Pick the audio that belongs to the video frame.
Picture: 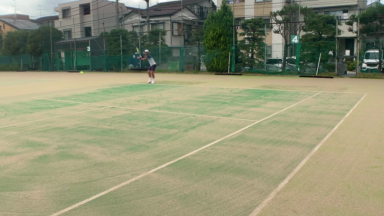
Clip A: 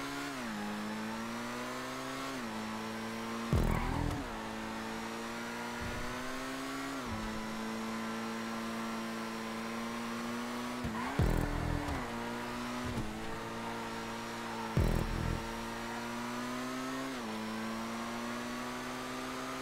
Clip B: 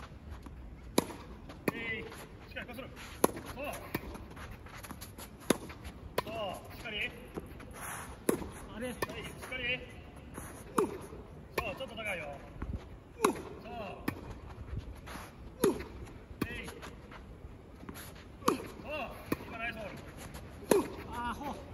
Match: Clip B